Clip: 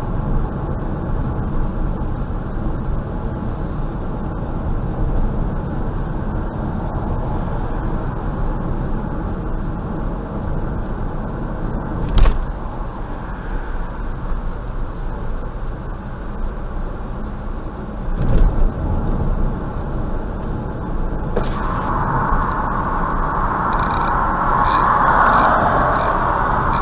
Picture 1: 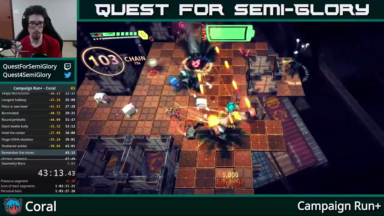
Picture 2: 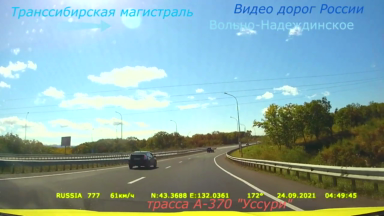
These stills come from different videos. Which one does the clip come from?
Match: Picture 2